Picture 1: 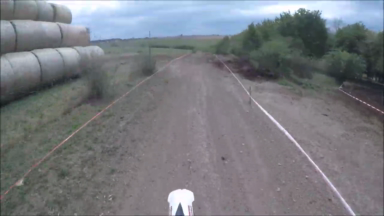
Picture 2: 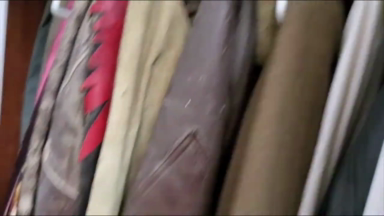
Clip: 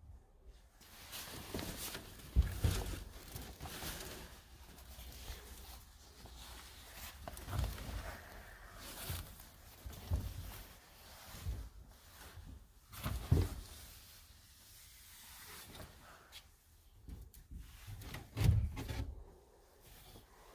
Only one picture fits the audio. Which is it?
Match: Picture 2